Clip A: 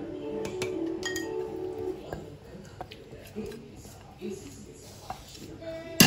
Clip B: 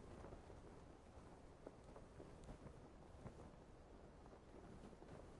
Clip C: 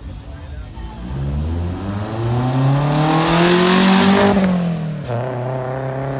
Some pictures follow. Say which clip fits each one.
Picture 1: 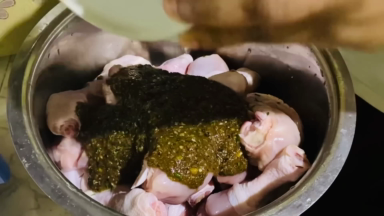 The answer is A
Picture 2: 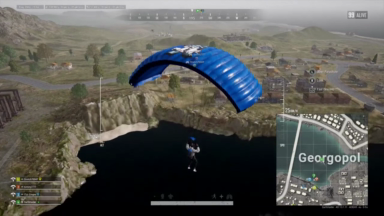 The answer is B